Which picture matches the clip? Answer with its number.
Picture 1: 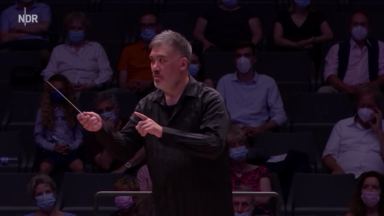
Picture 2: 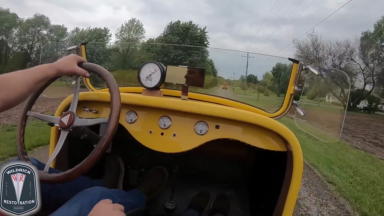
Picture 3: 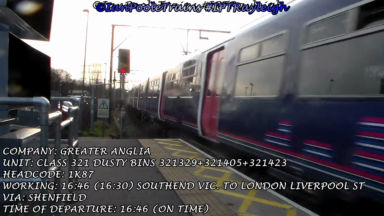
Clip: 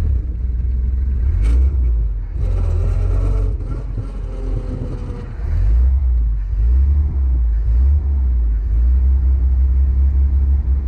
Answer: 2